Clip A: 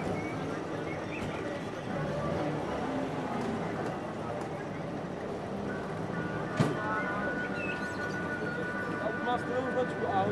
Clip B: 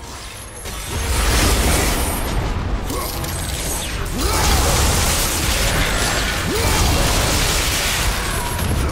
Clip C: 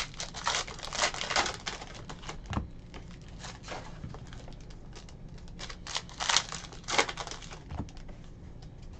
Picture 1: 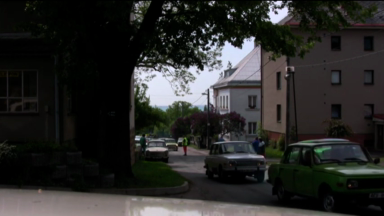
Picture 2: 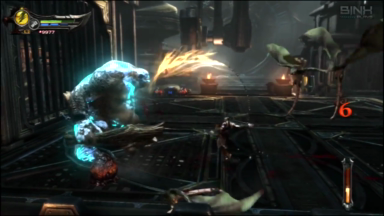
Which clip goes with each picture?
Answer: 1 A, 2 B